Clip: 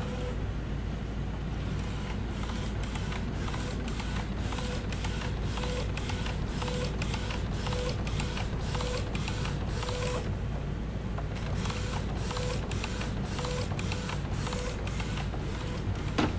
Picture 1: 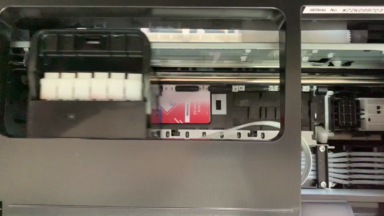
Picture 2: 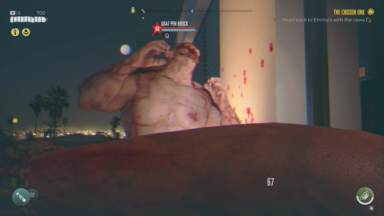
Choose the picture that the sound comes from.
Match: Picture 1